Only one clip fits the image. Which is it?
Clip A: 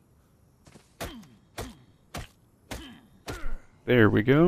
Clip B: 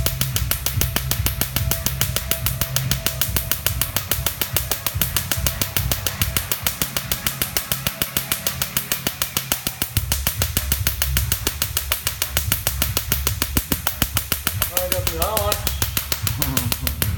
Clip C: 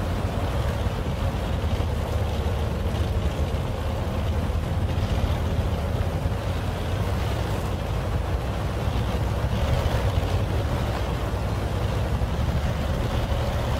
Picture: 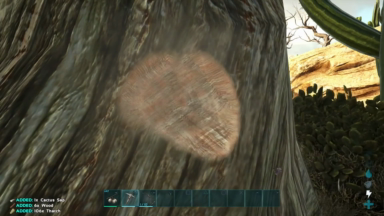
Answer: A